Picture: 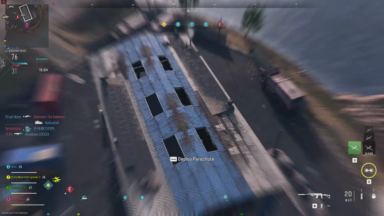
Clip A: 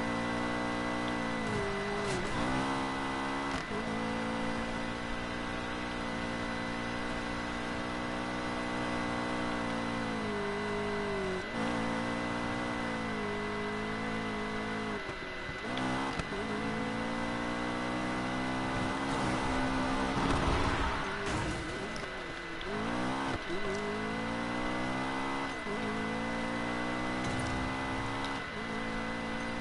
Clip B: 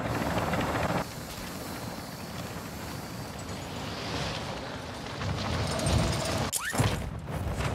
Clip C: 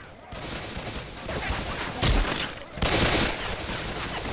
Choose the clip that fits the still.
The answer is B